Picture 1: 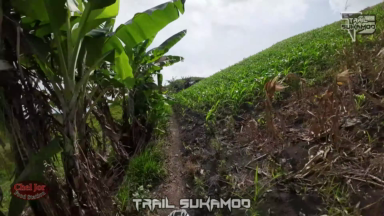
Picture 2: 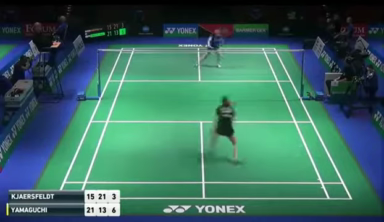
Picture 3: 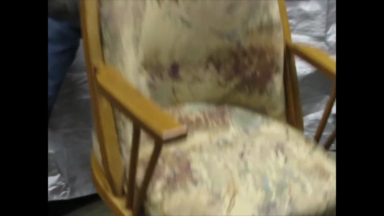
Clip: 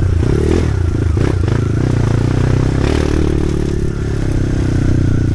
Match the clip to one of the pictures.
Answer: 1